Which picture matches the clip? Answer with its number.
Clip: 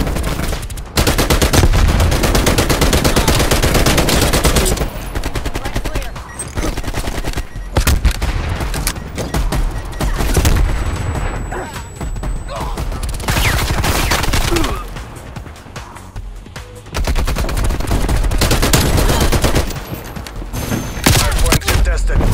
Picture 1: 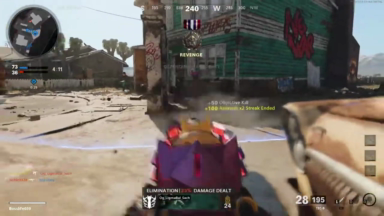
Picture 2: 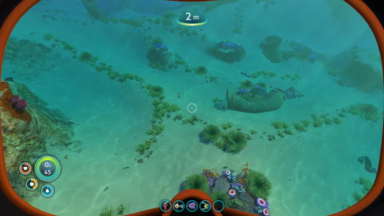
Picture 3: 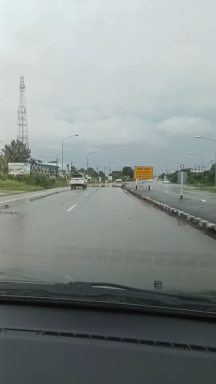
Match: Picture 1